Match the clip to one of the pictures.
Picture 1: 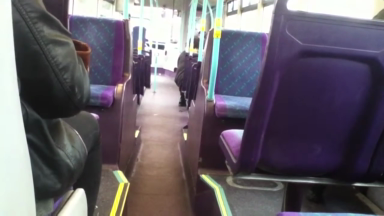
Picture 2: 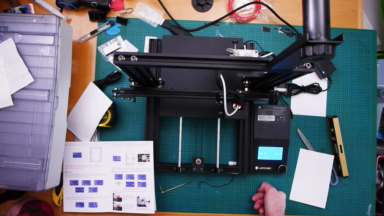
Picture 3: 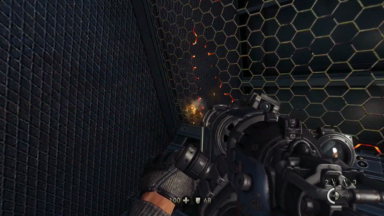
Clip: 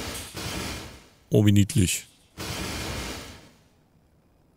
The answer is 3